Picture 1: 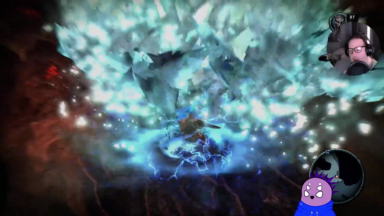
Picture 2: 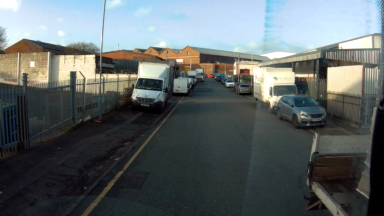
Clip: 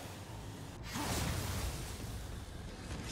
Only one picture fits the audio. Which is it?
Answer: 1